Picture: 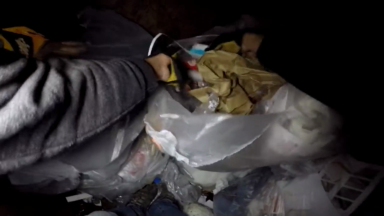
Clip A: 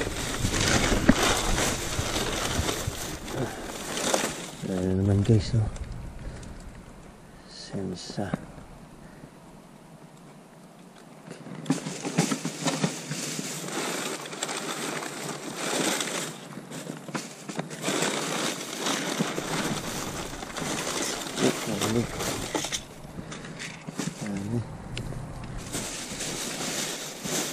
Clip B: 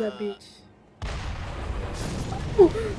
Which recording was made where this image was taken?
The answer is A